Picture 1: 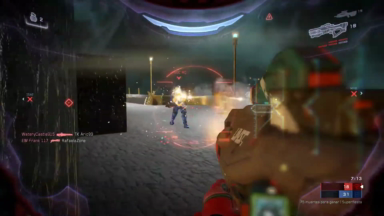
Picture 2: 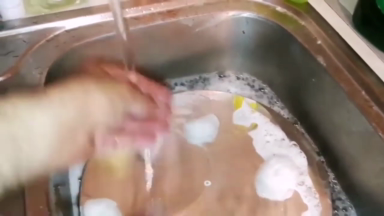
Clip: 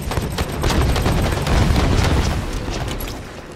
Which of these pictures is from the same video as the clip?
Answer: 1